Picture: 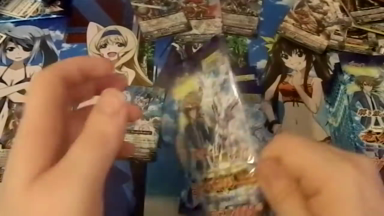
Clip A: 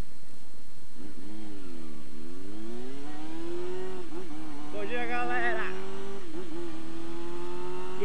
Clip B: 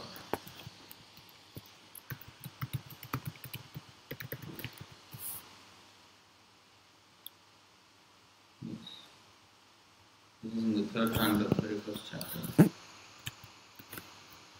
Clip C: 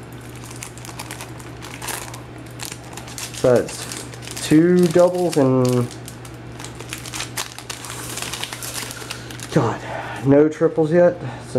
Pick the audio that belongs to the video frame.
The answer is C